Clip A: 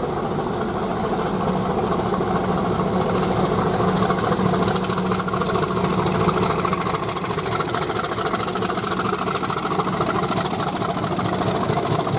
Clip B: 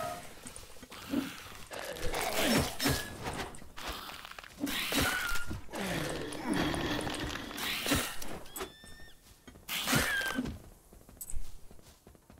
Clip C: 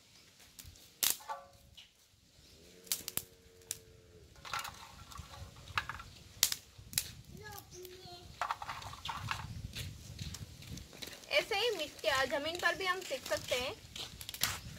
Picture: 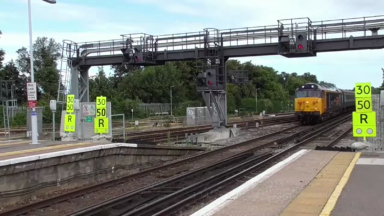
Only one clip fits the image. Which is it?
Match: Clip A